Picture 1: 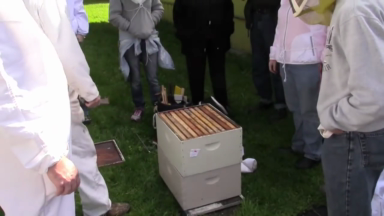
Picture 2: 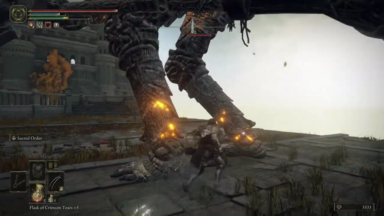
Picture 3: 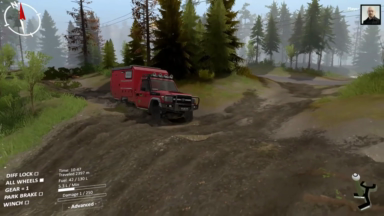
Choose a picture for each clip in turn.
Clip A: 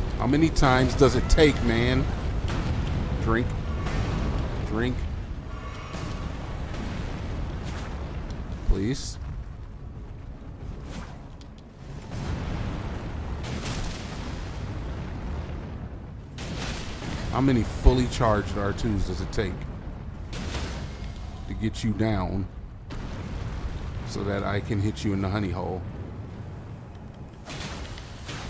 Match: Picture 2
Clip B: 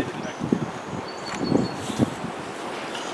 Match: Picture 1